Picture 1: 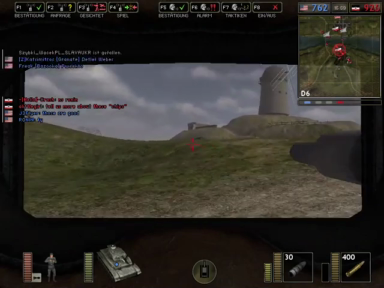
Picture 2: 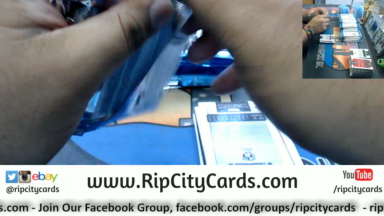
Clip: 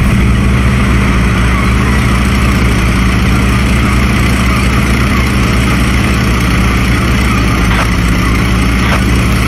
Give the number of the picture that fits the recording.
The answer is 1